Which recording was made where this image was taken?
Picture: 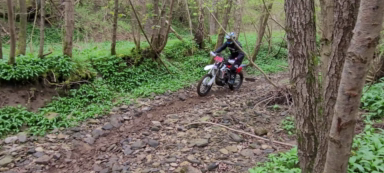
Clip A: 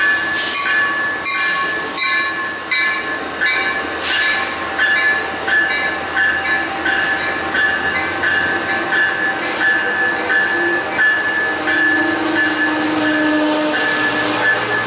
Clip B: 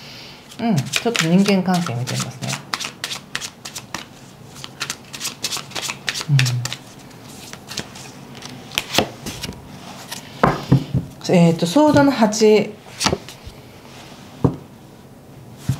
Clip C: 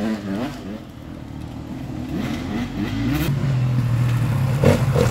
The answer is C